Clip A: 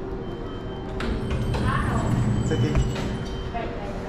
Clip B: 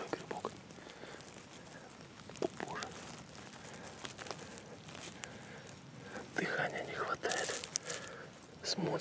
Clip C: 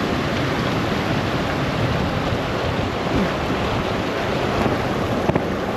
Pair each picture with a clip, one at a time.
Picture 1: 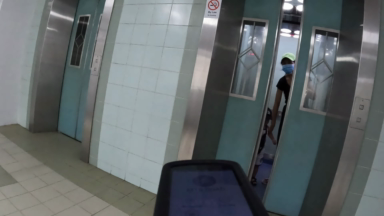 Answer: A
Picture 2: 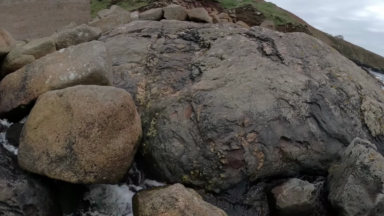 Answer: C